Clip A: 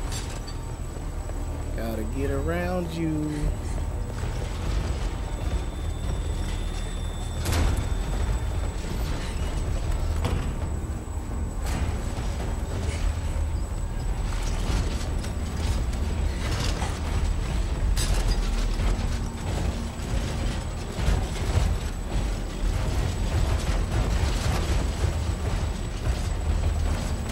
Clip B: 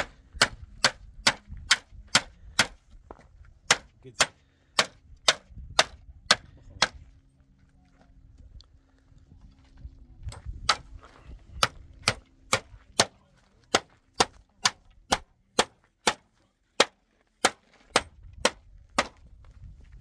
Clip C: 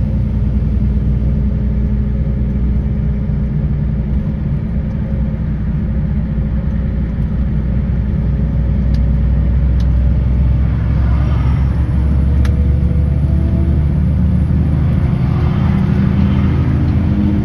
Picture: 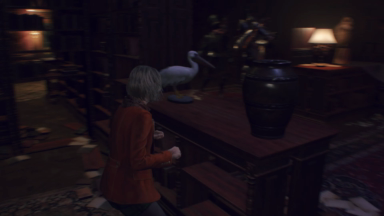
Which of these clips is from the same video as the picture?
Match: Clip A